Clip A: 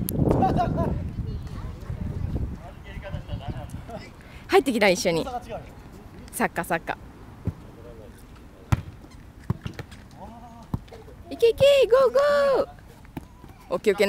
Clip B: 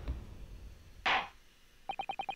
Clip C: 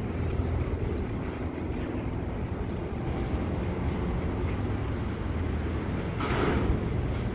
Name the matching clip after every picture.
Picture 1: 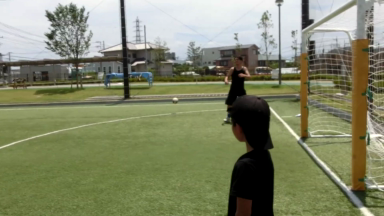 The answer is A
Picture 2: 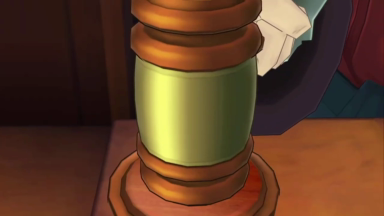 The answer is B